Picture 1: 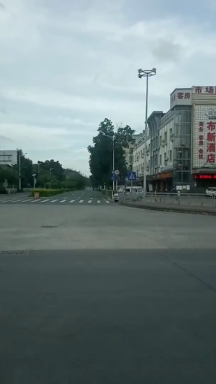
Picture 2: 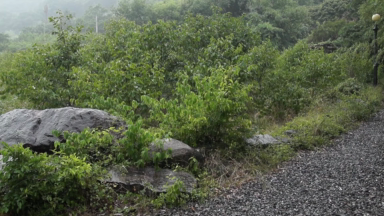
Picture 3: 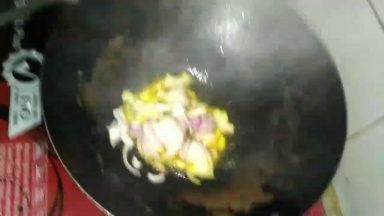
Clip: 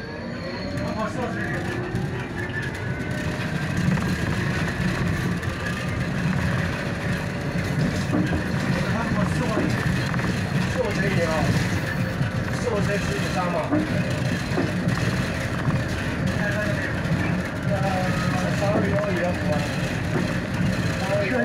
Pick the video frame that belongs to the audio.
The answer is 1